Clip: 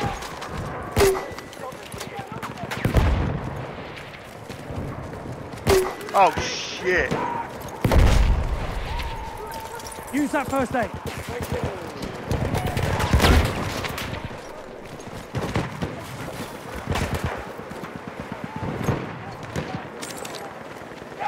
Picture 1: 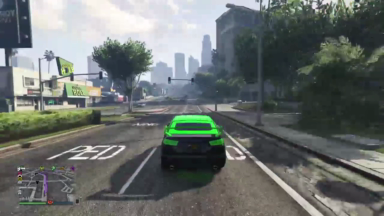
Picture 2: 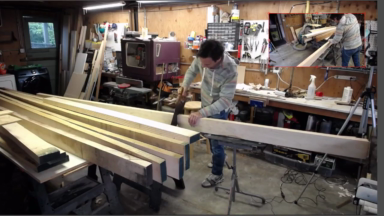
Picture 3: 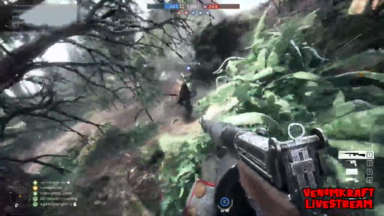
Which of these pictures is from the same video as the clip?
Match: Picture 3